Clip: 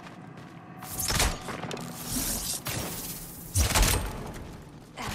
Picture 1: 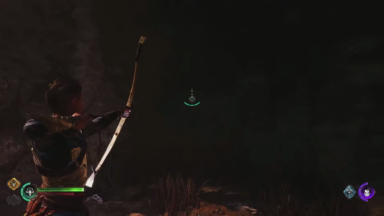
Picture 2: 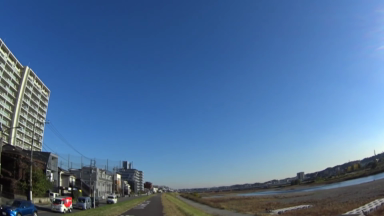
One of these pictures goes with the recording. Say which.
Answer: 1